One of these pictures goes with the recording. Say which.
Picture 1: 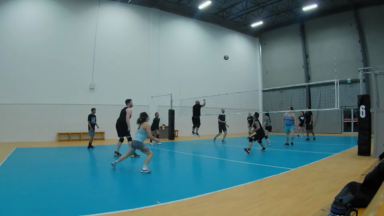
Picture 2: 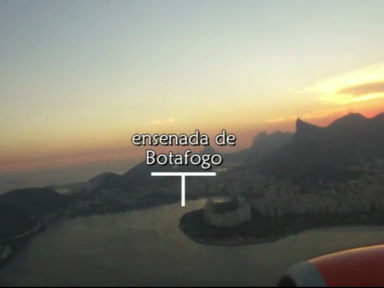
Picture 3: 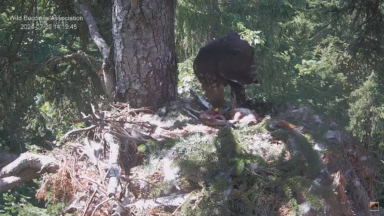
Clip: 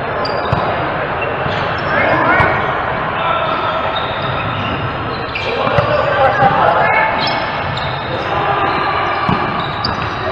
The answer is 1